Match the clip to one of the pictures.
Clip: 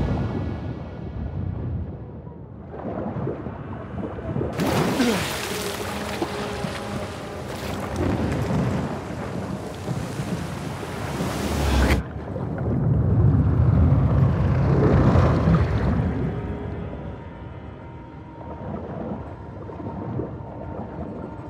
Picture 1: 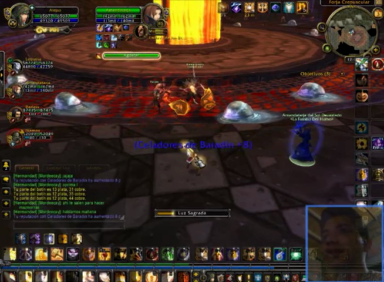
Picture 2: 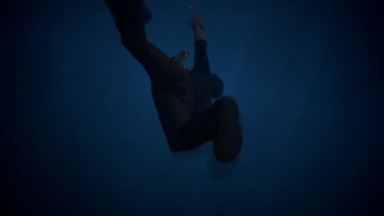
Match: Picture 2